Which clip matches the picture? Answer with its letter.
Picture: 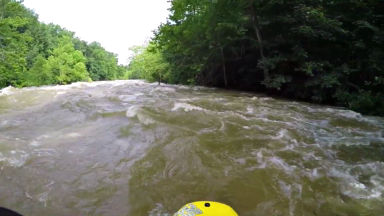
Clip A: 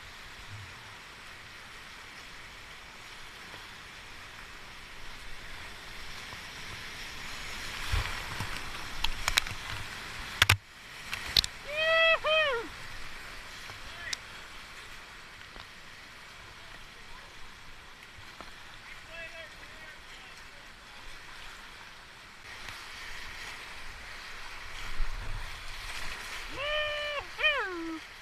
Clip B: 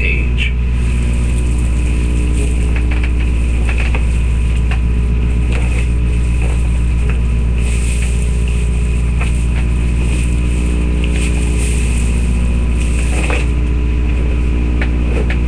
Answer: A